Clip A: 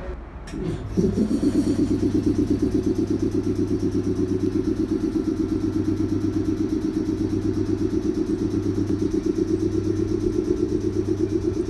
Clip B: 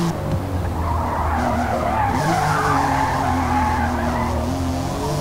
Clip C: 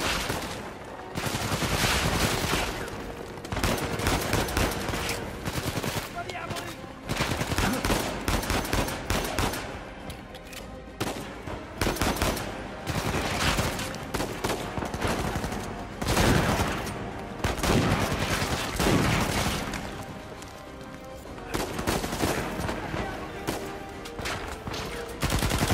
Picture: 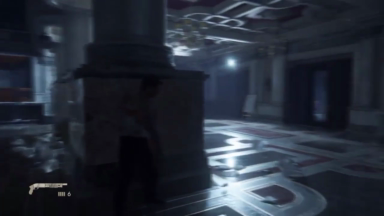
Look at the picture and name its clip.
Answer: C